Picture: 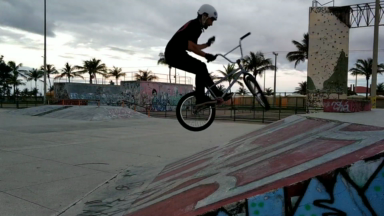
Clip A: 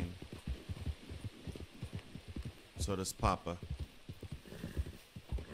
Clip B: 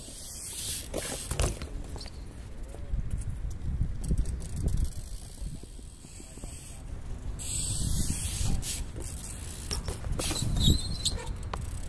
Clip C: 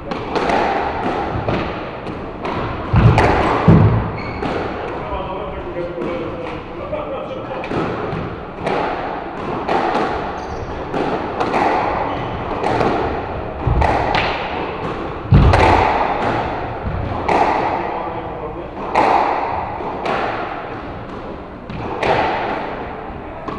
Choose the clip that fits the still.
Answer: B